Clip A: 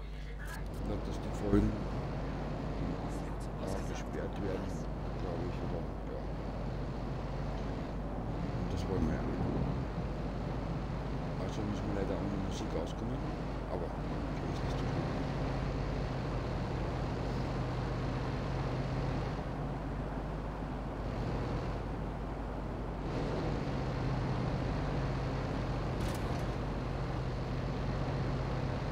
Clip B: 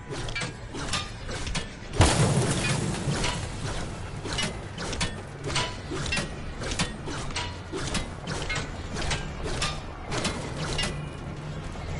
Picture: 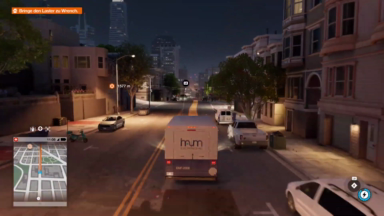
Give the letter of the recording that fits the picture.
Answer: A